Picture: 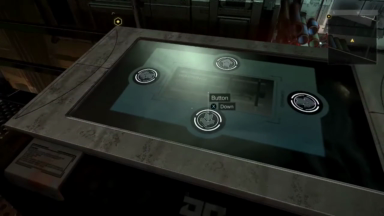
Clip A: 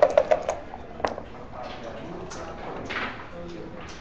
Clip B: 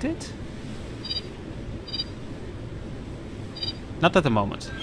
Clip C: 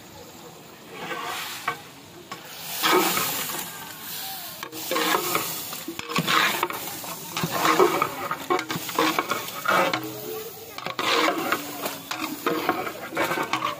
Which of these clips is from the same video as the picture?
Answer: B